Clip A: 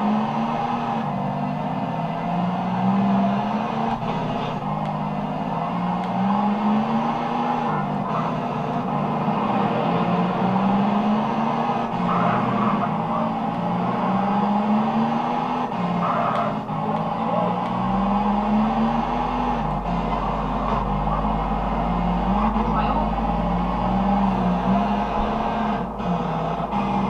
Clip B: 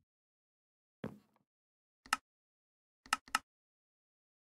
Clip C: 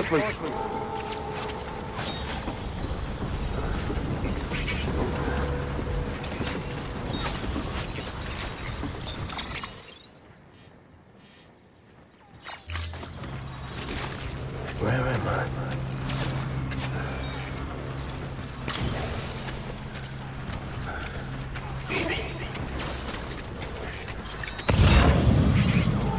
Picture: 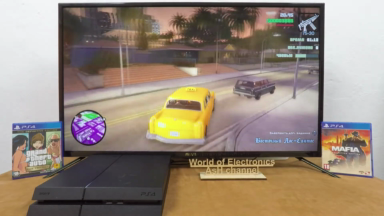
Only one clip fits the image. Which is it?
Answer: A